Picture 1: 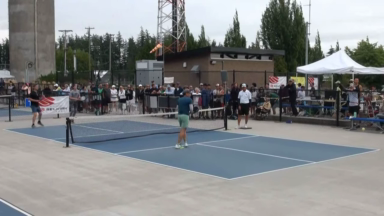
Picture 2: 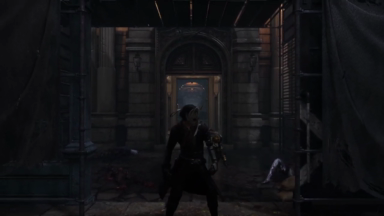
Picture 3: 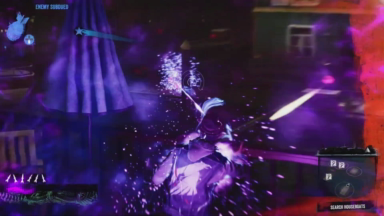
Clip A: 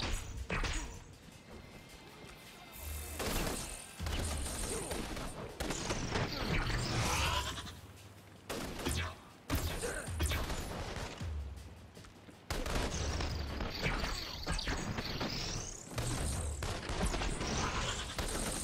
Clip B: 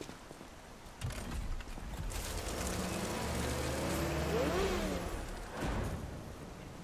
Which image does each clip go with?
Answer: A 3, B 2